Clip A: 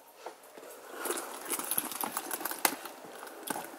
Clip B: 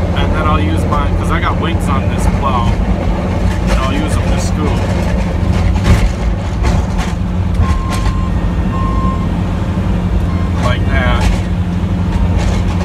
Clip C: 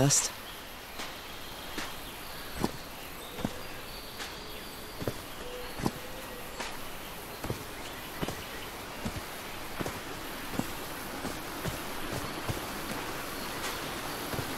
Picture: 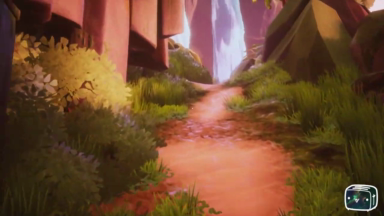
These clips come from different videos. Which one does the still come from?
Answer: C